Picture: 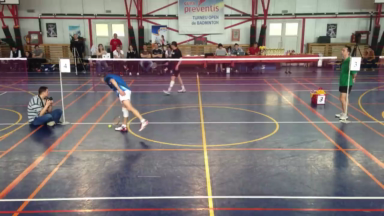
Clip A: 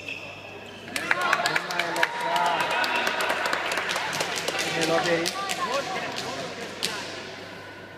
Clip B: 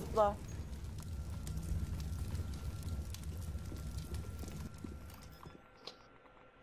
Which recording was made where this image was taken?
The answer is A